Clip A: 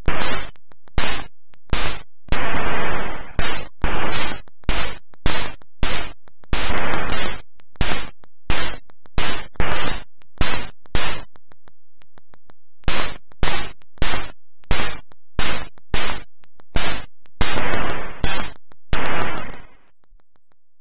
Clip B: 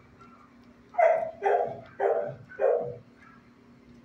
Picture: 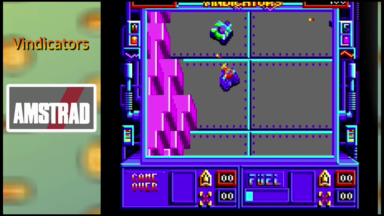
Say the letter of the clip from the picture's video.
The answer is A